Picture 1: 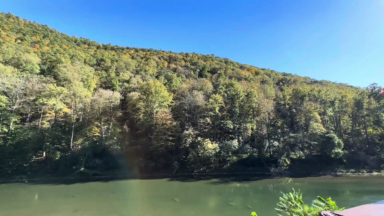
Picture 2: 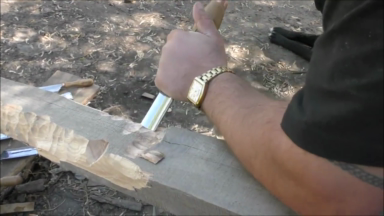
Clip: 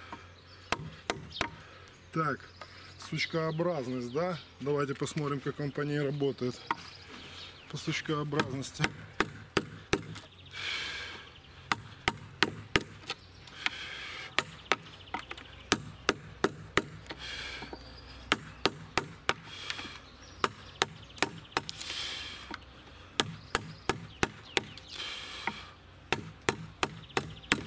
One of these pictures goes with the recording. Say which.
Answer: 2